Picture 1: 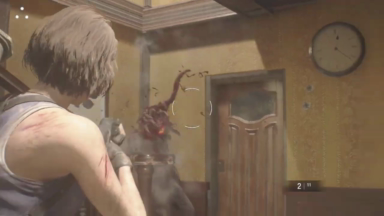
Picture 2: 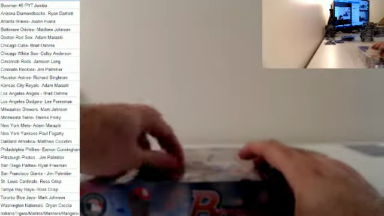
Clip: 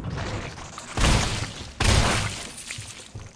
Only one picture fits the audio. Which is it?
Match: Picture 1